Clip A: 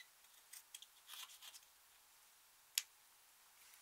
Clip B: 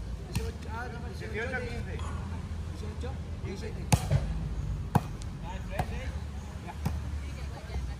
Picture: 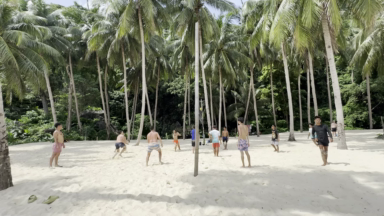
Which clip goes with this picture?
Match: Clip B